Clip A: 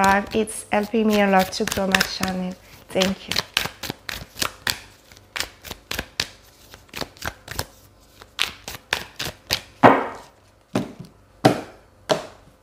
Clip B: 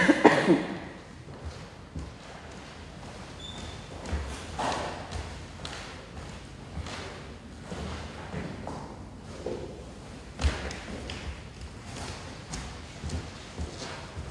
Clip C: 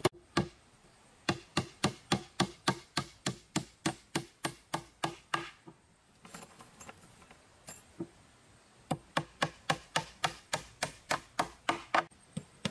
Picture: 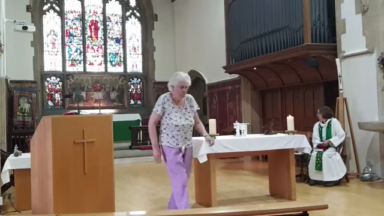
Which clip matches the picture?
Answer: B